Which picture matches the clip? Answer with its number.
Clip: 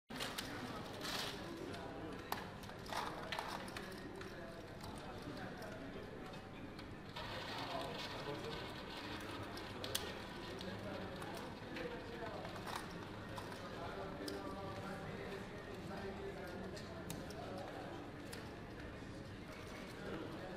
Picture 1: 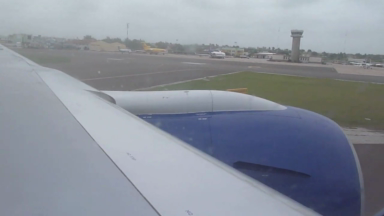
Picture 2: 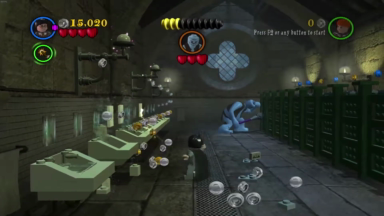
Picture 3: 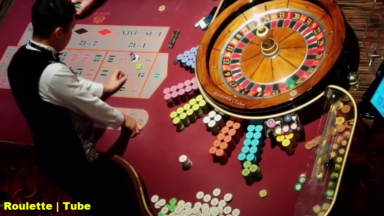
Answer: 3